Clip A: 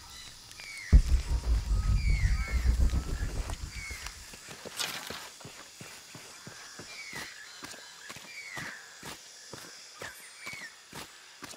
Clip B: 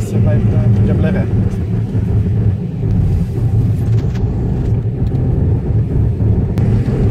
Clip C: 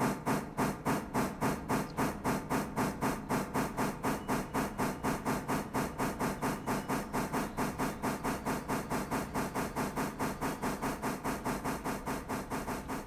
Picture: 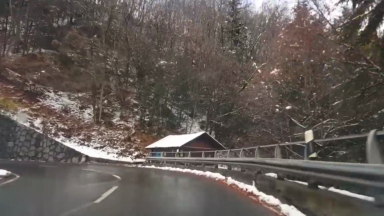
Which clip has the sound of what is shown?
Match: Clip B